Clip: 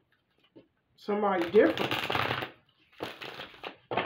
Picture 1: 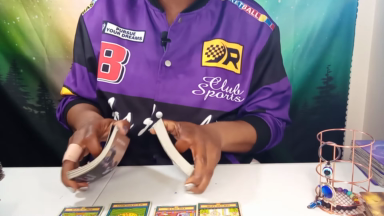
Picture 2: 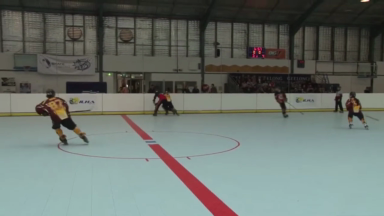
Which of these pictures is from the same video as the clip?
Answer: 1